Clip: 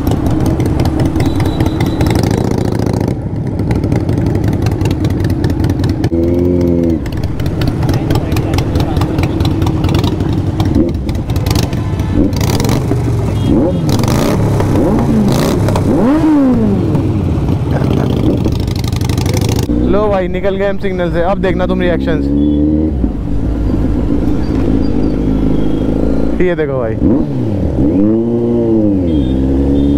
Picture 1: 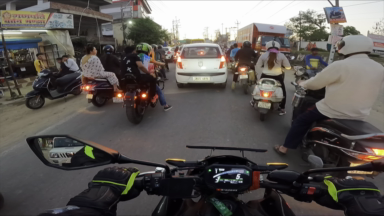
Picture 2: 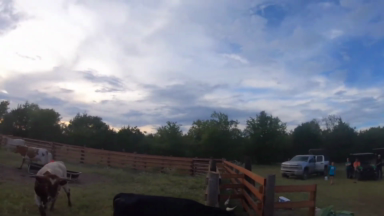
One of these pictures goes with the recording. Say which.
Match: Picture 1